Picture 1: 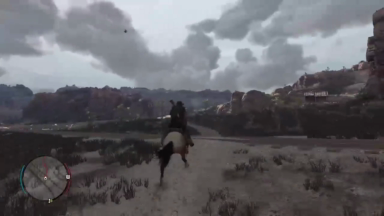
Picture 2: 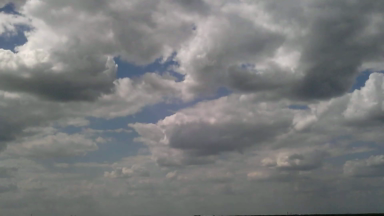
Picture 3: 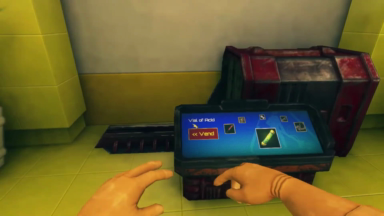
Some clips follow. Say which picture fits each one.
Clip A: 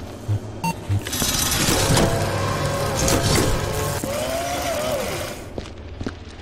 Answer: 3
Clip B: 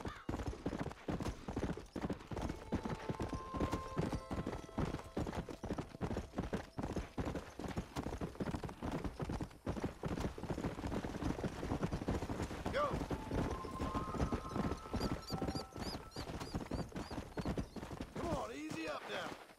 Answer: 1